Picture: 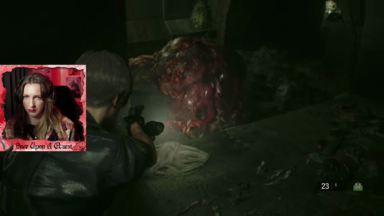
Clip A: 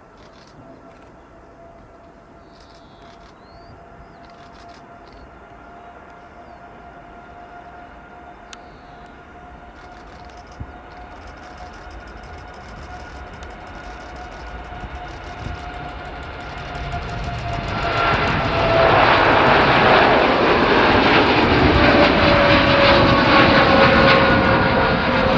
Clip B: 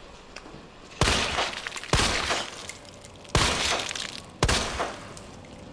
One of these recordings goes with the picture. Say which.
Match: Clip B